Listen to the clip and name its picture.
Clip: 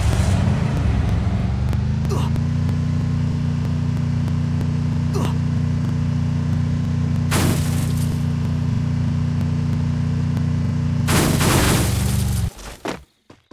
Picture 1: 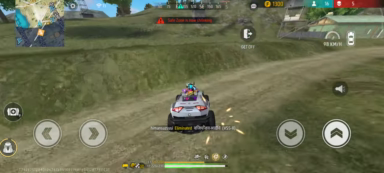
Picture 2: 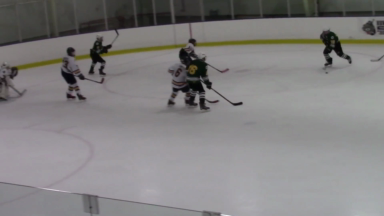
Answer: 1